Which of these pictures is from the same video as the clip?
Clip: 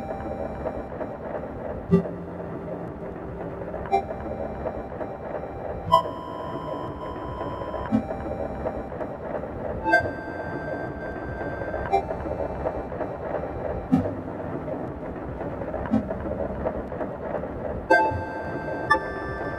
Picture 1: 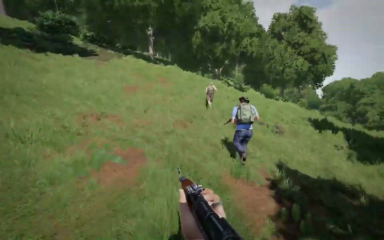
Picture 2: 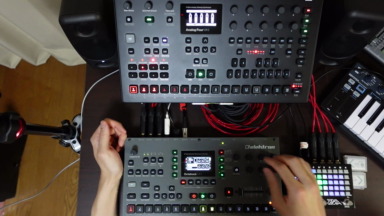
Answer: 2